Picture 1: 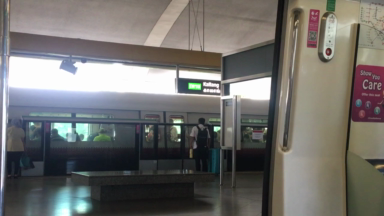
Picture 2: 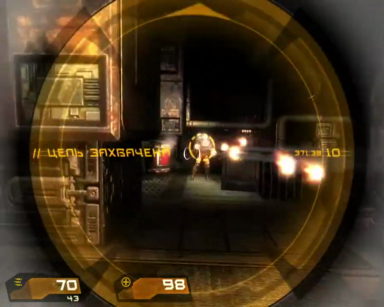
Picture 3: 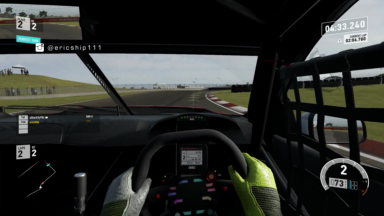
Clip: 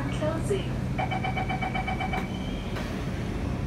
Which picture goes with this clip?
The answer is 1